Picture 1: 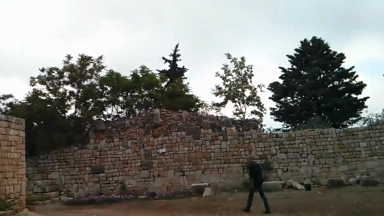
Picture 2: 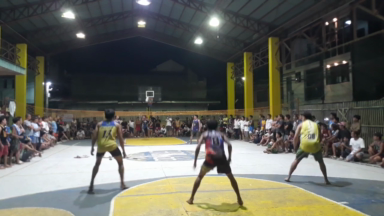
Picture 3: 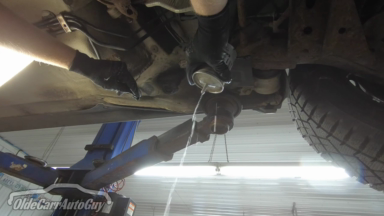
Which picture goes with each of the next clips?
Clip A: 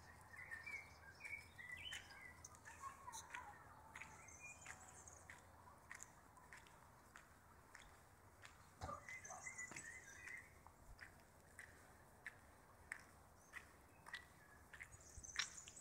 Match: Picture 1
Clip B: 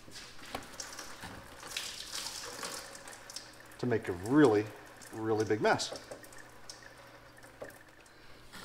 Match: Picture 3